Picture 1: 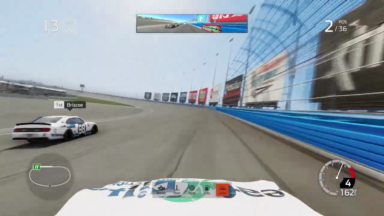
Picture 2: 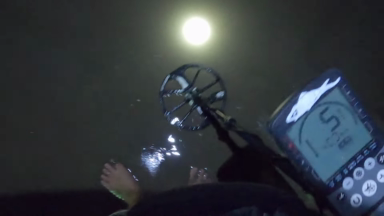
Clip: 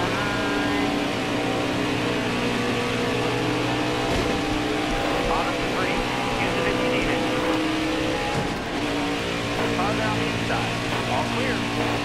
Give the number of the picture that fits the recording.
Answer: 1